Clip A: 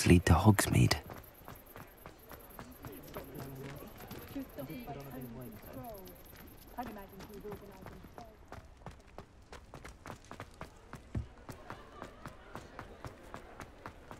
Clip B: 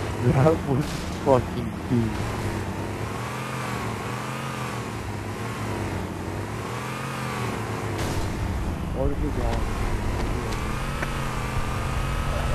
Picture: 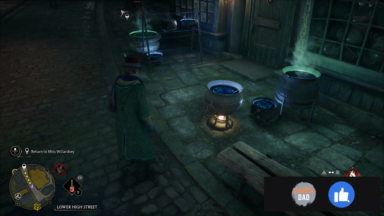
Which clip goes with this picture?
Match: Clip A